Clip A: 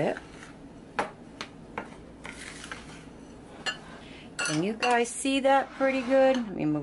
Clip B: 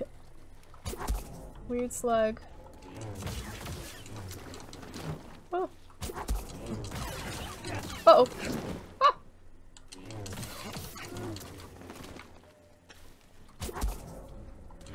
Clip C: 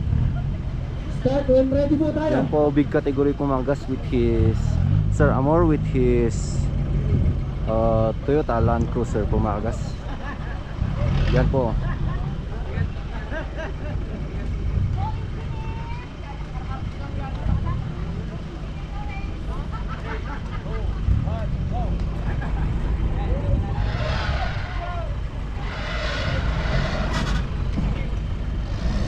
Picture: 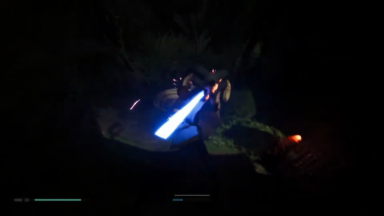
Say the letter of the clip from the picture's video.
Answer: B